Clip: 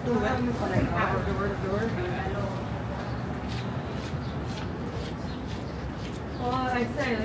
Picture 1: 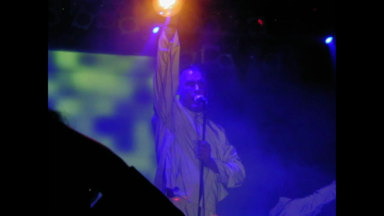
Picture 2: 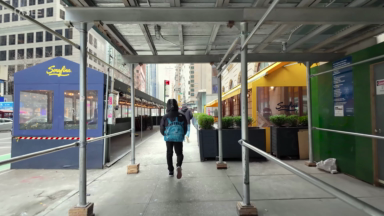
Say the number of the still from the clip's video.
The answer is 2